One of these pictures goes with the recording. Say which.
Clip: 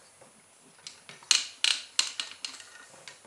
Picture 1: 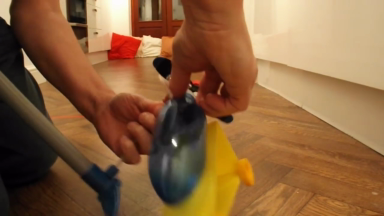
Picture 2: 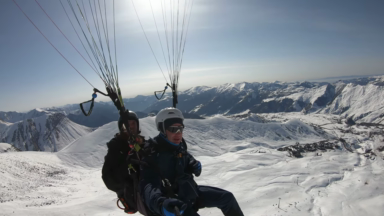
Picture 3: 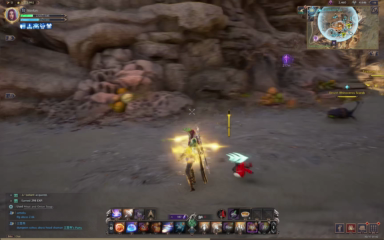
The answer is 1